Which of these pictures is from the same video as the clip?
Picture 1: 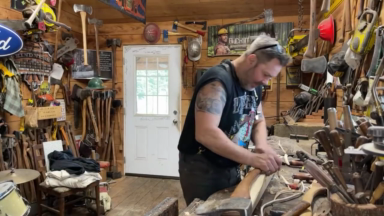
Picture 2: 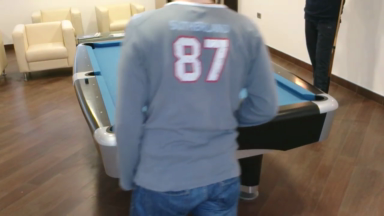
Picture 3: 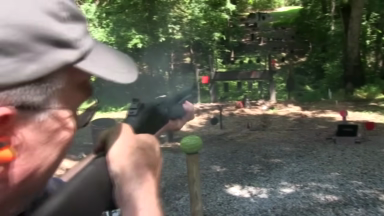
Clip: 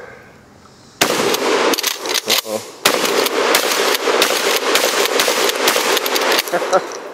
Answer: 3